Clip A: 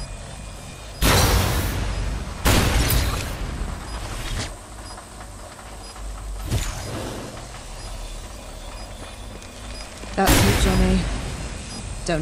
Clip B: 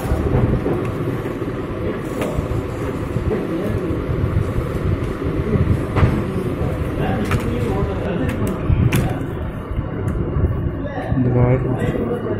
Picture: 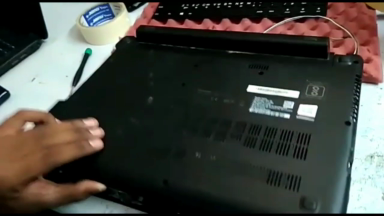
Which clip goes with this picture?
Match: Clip B